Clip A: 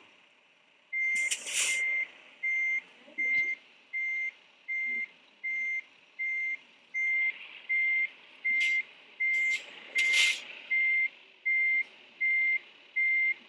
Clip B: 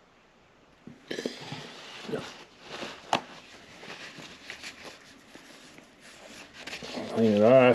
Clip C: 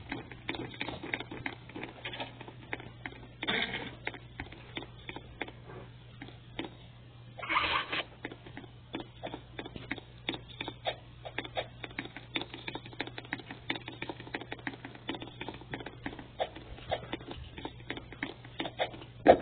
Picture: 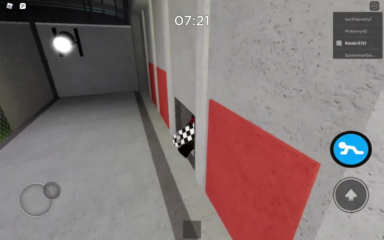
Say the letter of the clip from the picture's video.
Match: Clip C